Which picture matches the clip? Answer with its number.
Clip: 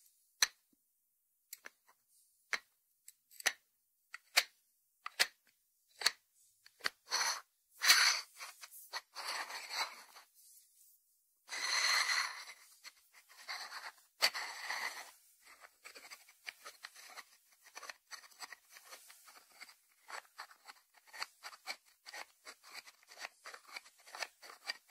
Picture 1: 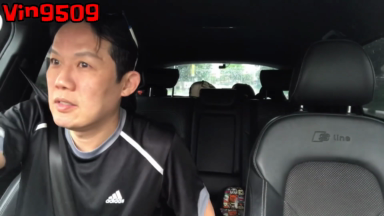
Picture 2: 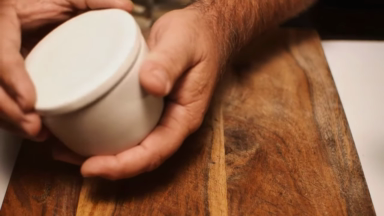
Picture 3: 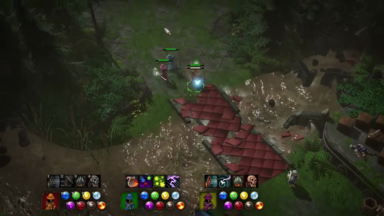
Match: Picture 2